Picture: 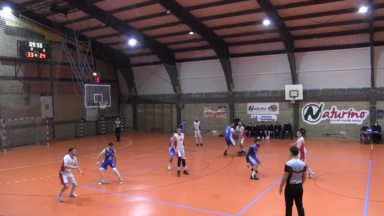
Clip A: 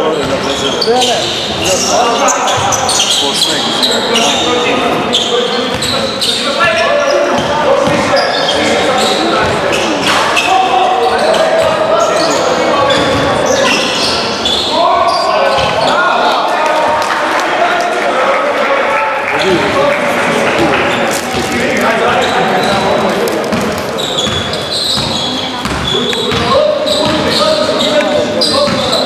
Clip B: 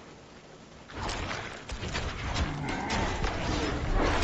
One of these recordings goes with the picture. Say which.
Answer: A